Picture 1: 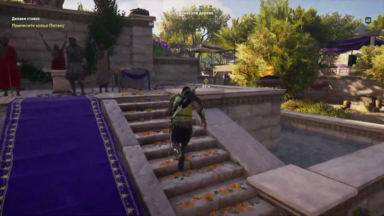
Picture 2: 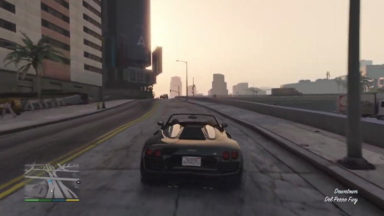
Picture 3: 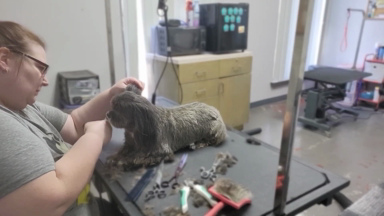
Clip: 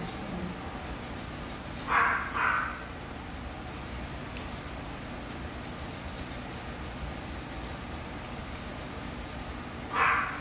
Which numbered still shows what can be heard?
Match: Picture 3